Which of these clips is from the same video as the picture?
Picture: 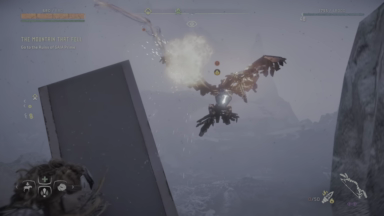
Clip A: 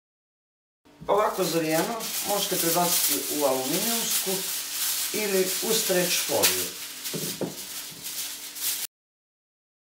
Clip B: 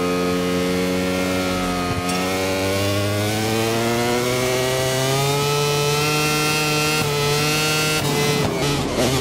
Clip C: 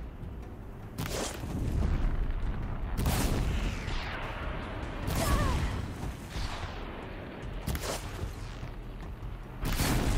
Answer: C